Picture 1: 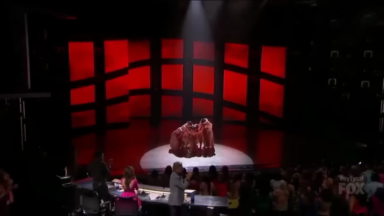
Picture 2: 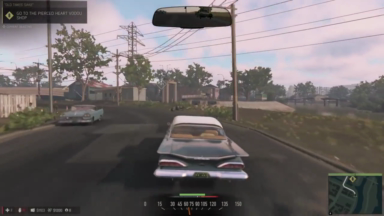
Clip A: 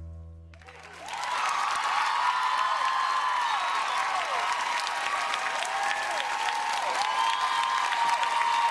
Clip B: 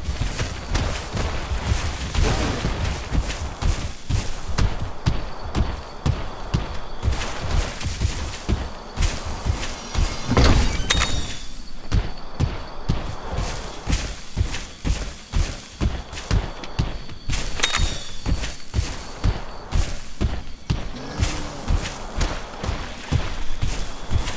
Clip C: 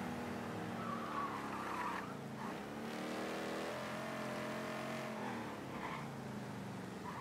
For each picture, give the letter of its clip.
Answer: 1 A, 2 C